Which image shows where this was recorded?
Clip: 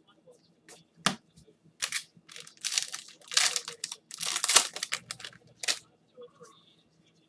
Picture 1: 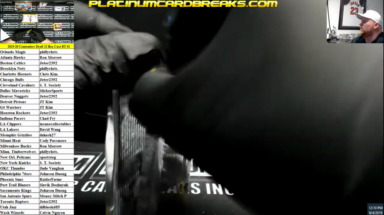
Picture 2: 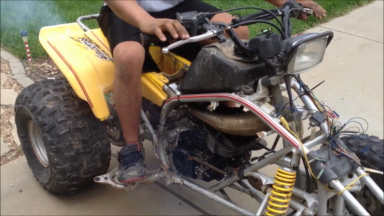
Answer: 1